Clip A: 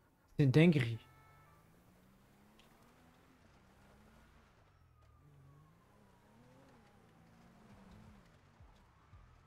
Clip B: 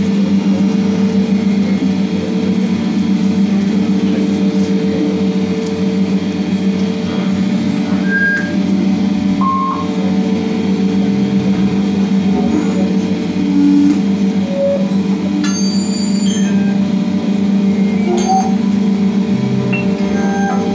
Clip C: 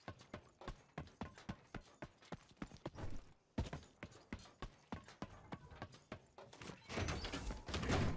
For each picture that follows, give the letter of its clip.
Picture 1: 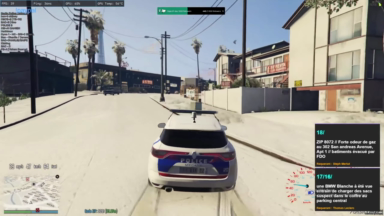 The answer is A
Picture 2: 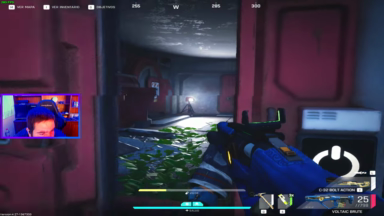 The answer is C